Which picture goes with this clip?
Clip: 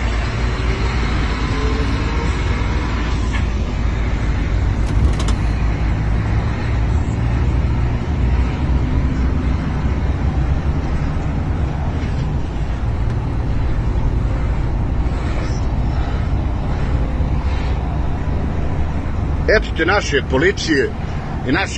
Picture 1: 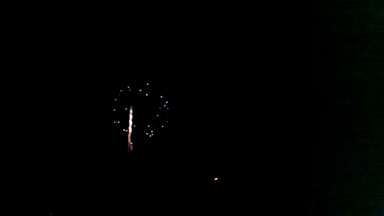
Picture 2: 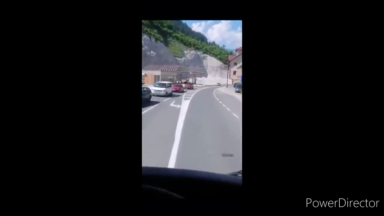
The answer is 2